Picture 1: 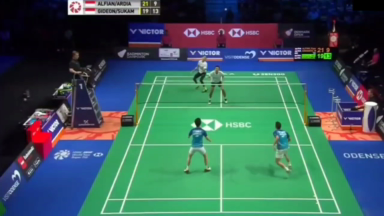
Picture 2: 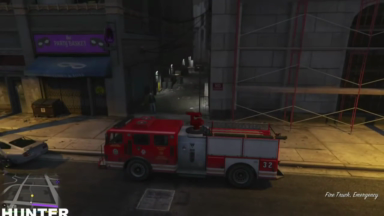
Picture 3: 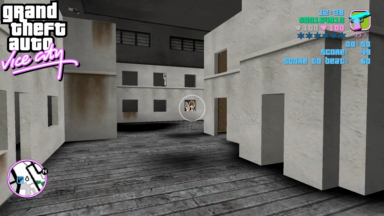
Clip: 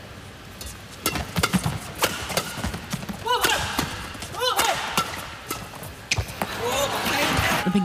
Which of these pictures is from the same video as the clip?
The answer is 1